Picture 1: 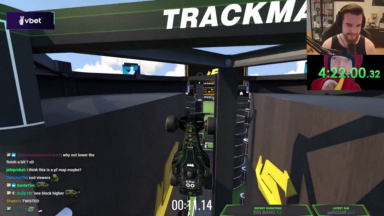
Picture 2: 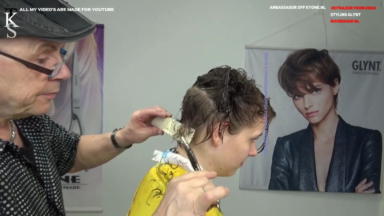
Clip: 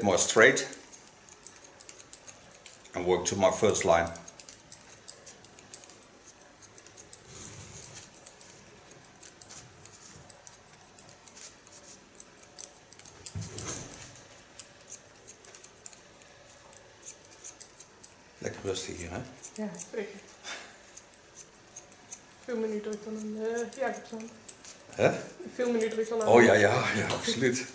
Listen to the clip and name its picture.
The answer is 2